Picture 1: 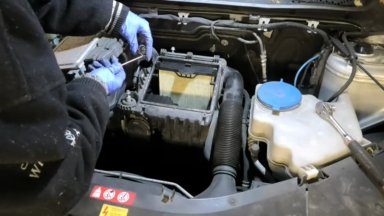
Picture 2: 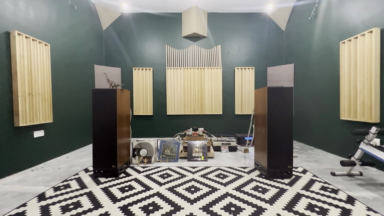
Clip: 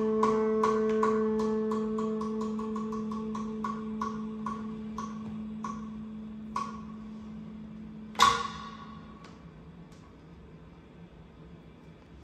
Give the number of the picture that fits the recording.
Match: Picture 2